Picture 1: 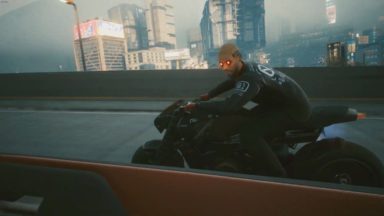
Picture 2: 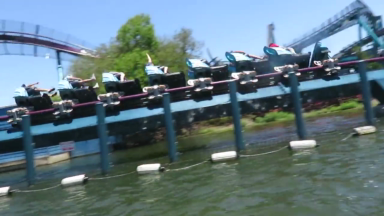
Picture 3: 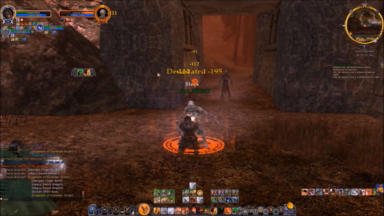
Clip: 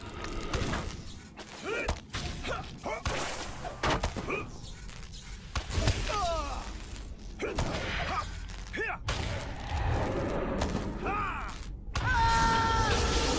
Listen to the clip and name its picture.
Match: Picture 3